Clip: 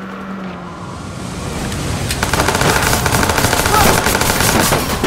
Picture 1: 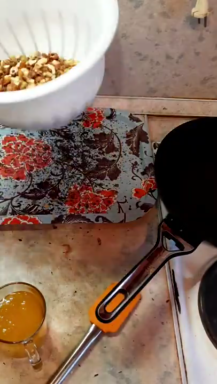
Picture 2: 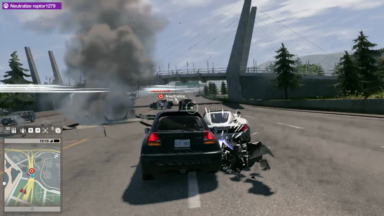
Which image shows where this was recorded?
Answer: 2